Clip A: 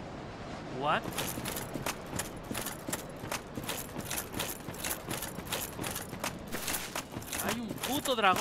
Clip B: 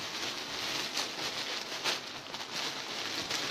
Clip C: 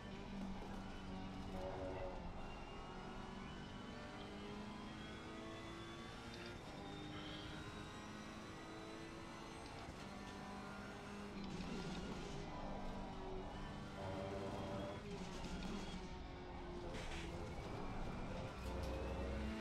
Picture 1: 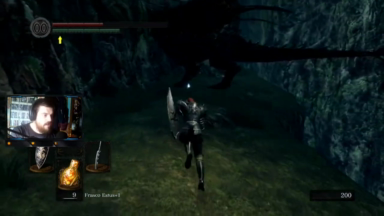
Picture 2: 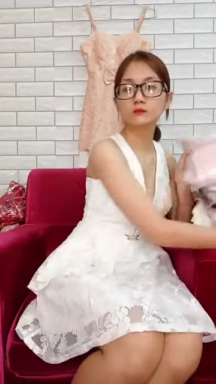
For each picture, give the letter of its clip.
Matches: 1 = A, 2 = B